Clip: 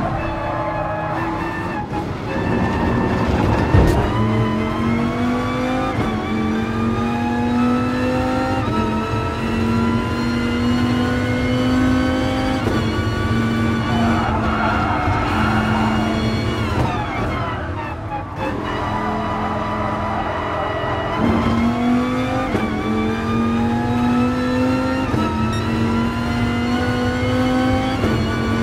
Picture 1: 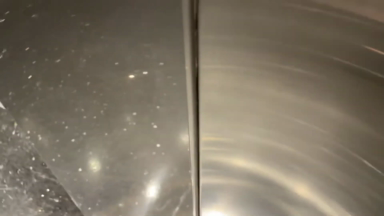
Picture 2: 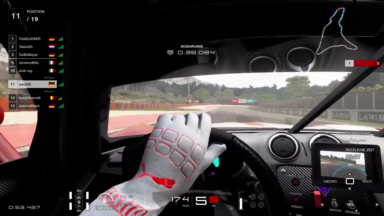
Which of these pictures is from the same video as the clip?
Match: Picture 2